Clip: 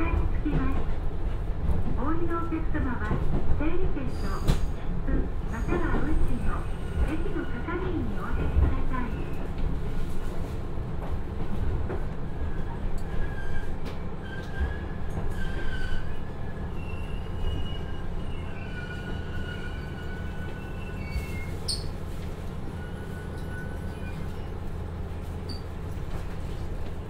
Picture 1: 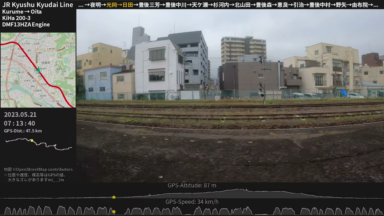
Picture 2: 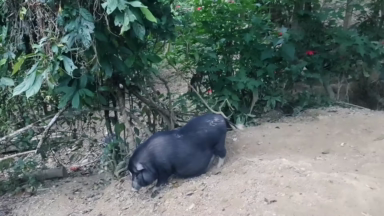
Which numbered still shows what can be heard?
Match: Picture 1